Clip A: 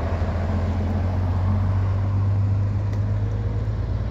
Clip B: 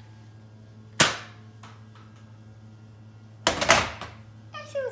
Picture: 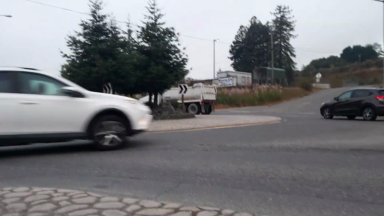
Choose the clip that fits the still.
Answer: A